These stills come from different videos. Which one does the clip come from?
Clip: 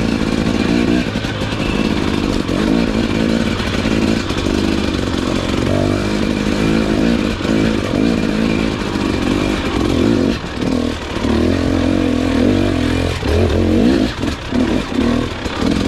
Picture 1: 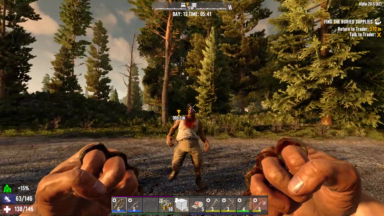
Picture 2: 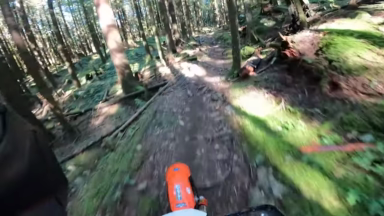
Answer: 2